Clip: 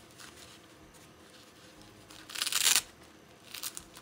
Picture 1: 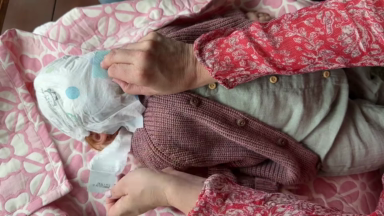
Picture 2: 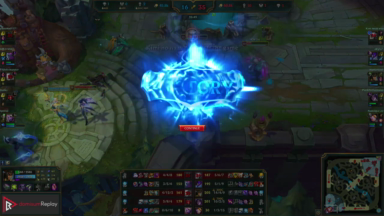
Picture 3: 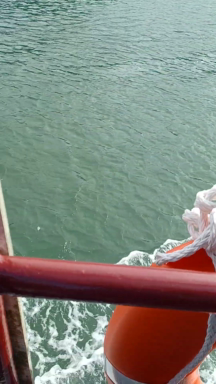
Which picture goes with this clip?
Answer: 1